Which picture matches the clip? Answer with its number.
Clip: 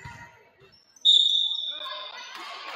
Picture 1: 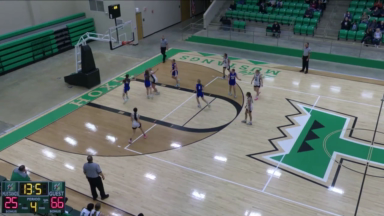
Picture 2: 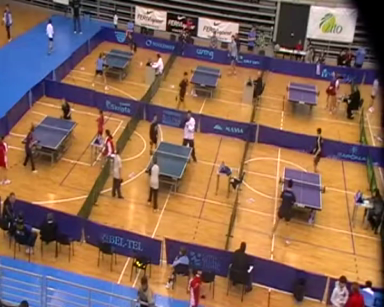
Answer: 1